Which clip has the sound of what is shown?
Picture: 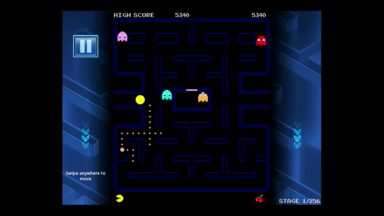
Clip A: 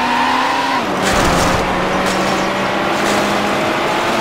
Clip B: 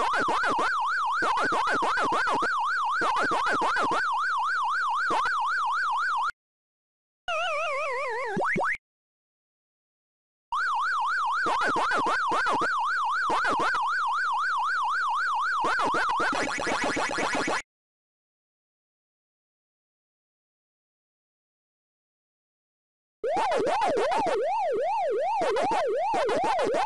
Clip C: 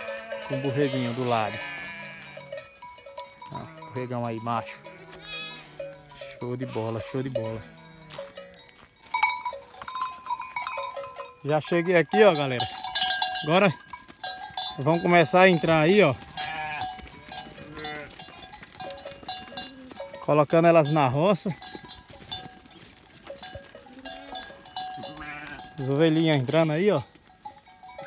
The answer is B